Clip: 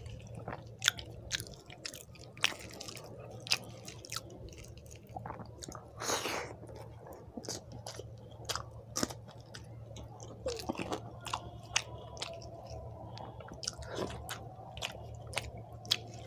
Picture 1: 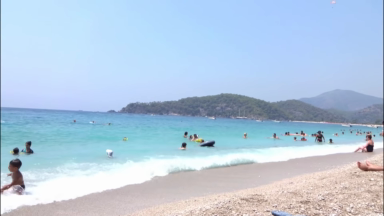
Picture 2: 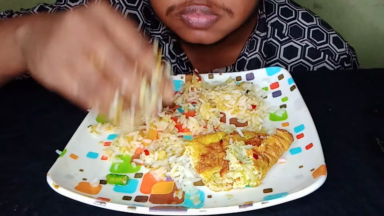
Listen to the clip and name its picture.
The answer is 2